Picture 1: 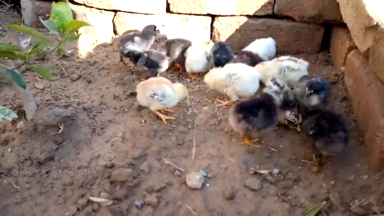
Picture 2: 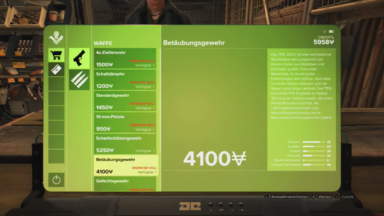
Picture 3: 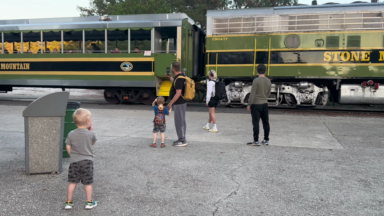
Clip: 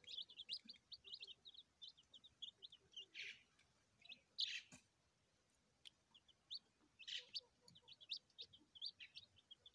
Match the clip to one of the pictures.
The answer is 1